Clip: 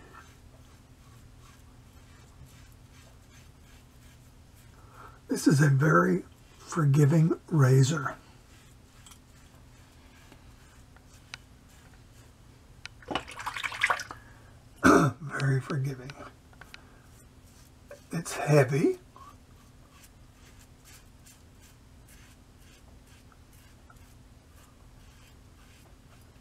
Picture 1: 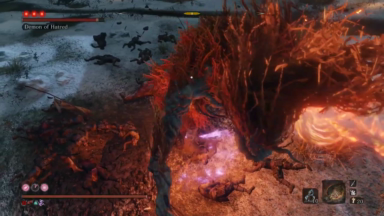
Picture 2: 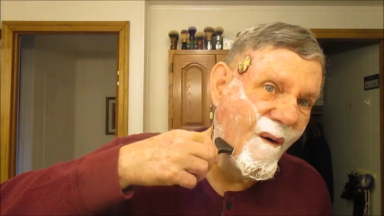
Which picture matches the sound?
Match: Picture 2